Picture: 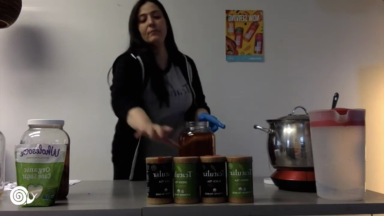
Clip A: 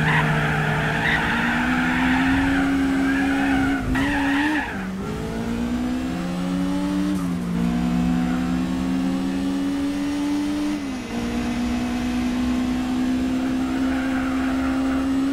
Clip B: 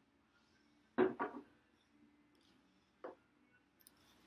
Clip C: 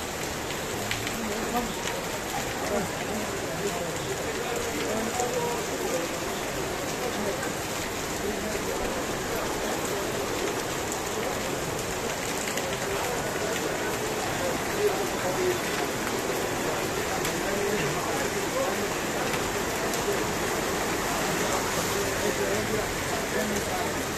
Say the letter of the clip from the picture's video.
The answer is B